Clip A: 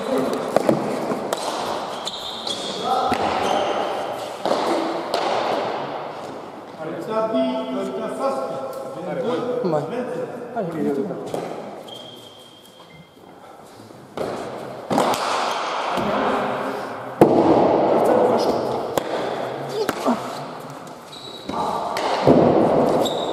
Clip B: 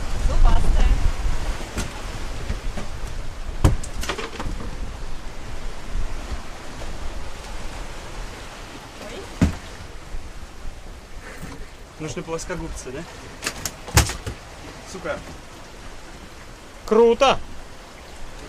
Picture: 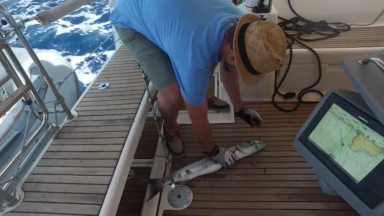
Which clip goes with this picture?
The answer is B